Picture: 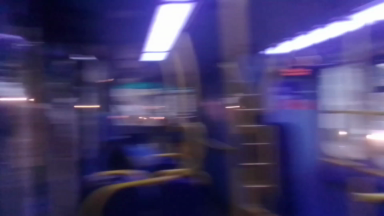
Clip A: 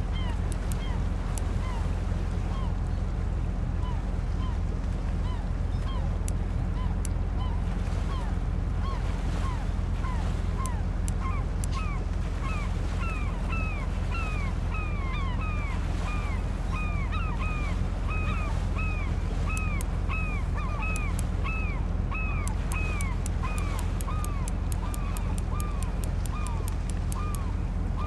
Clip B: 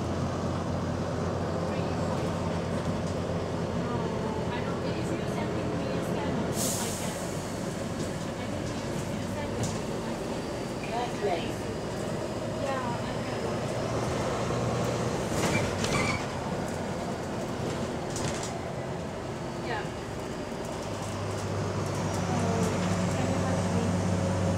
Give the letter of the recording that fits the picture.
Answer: B